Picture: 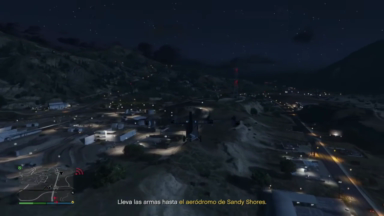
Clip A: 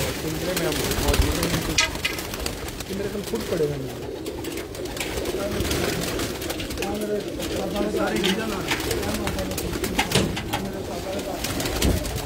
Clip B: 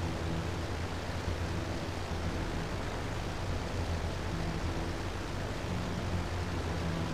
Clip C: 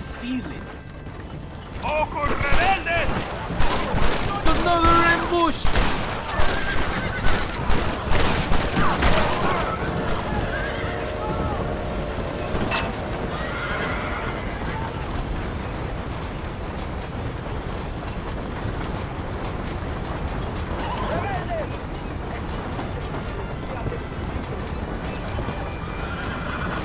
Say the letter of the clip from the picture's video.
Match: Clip B